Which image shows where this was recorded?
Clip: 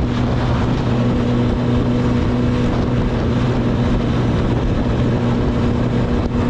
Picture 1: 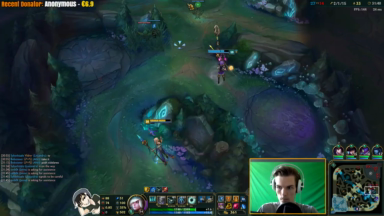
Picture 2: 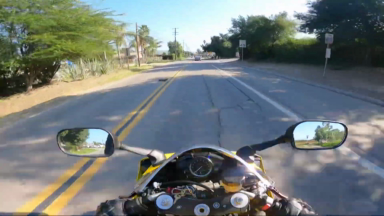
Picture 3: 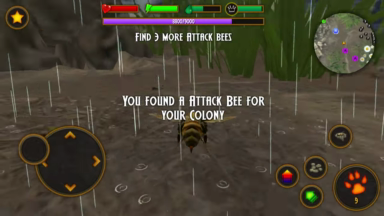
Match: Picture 2